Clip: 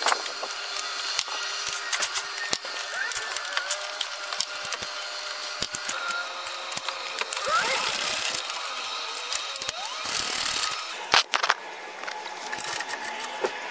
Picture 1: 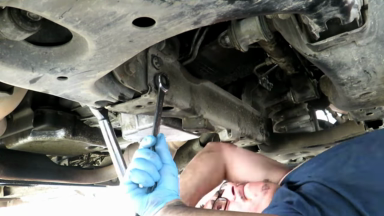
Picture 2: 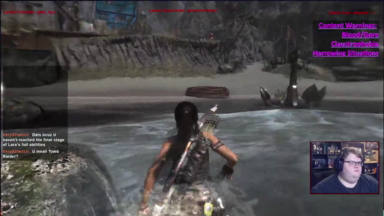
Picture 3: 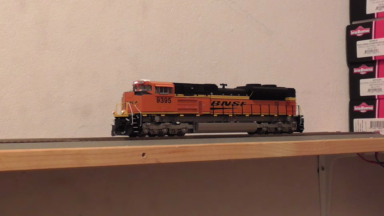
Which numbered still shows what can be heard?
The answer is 1